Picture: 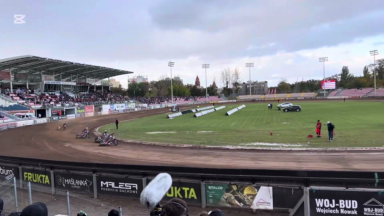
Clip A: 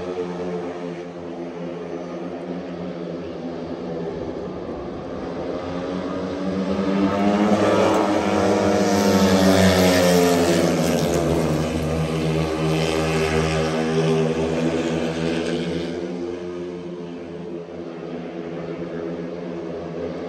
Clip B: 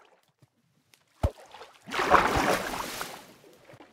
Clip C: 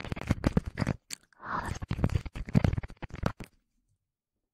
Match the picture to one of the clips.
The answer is A